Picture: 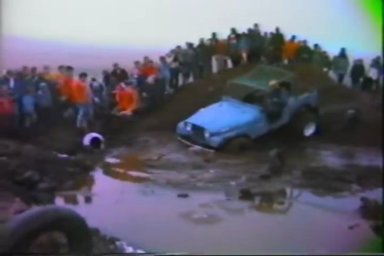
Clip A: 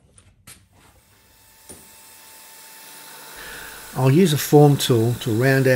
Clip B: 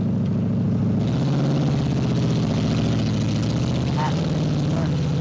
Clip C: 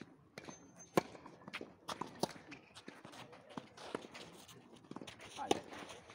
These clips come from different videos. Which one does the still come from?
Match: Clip B